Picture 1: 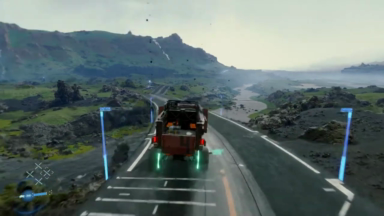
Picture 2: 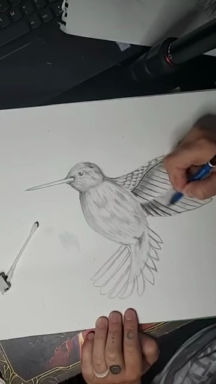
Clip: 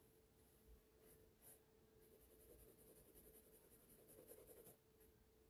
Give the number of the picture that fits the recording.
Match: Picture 2